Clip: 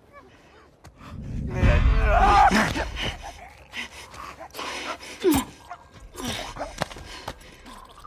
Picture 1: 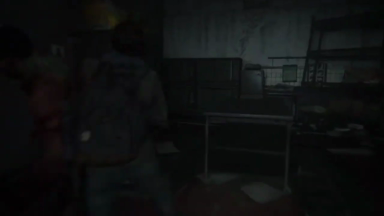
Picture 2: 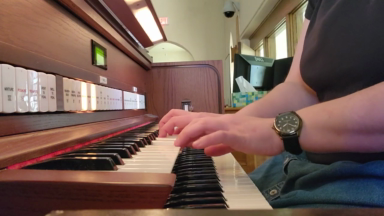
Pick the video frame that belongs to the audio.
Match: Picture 1